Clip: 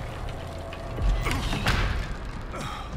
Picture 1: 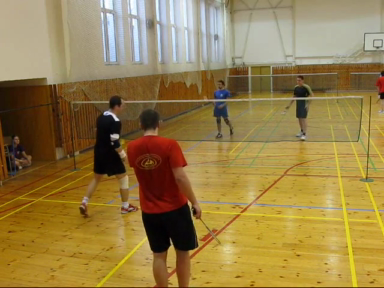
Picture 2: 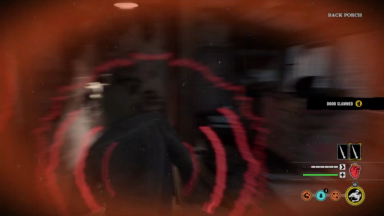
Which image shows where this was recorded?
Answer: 2